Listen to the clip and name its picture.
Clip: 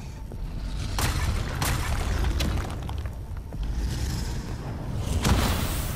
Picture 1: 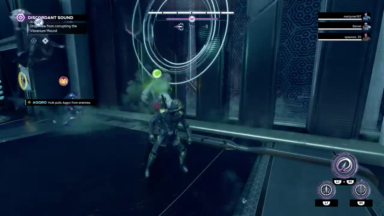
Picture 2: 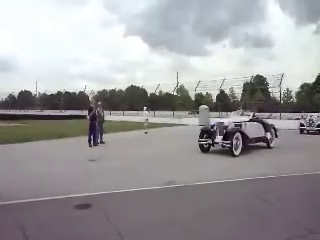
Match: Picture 1